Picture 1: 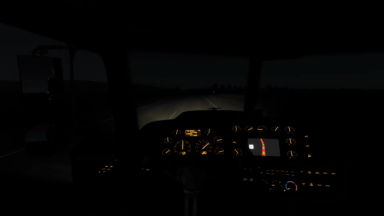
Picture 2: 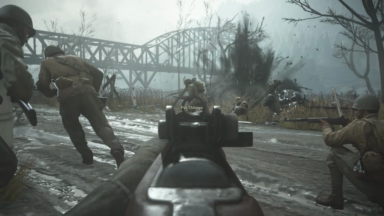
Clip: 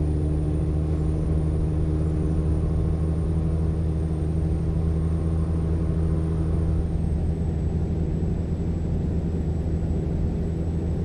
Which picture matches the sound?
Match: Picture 1